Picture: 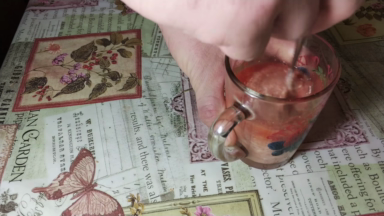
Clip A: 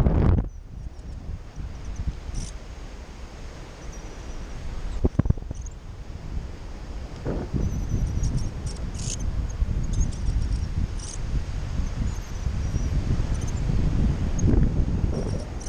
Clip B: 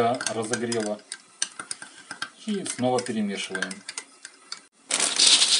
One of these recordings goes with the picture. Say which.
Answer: B